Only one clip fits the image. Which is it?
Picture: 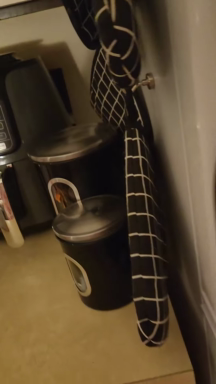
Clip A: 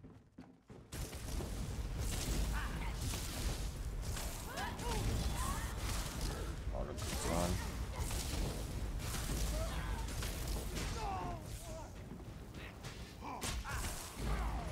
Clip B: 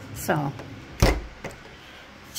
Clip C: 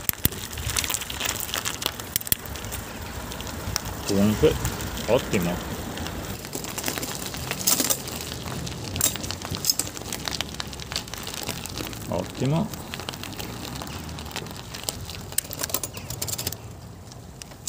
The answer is B